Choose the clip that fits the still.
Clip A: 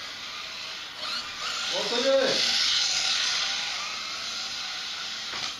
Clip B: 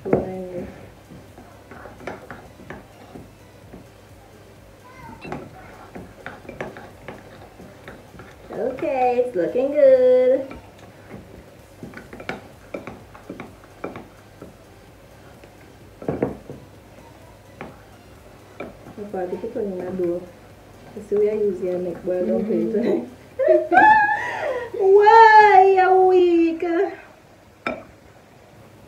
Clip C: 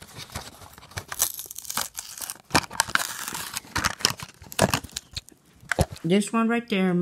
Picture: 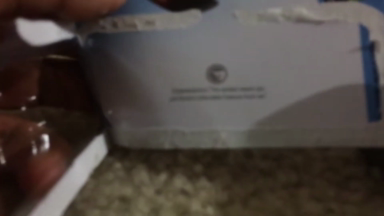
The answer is C